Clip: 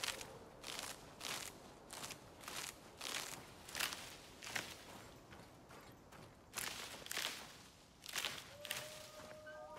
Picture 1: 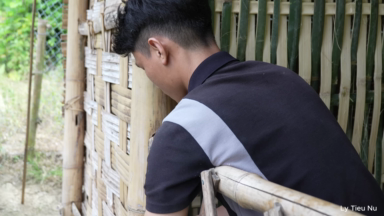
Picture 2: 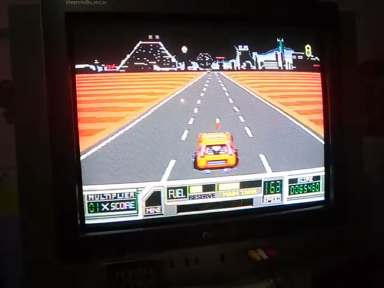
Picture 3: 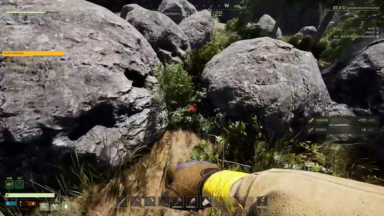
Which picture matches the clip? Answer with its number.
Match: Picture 3